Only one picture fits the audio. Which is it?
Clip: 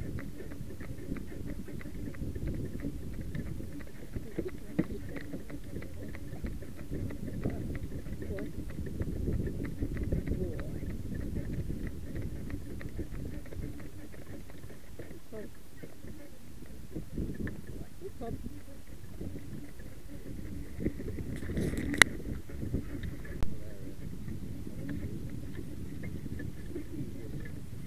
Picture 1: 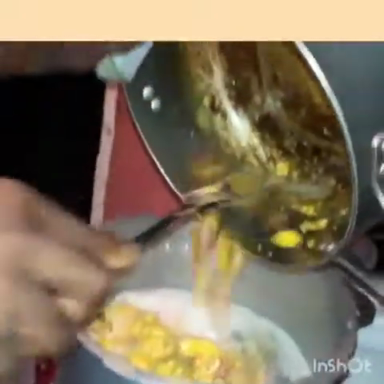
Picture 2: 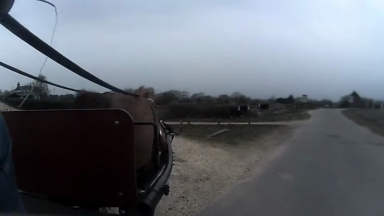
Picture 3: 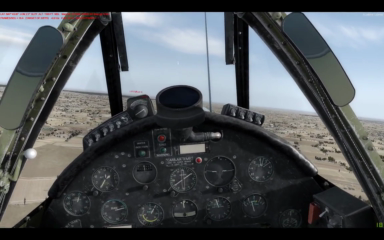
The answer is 2